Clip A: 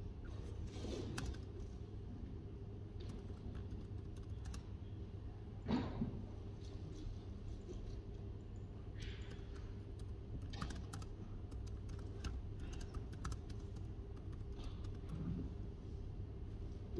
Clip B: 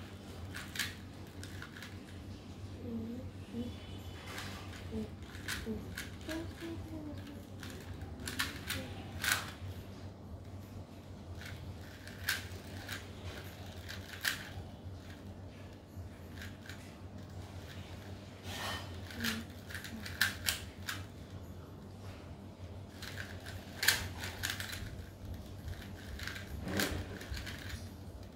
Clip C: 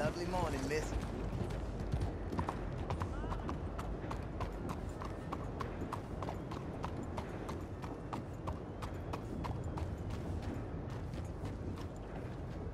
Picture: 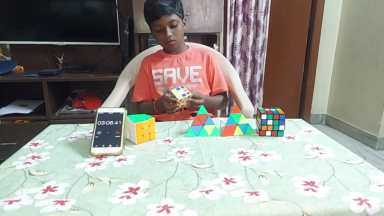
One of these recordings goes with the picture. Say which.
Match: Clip B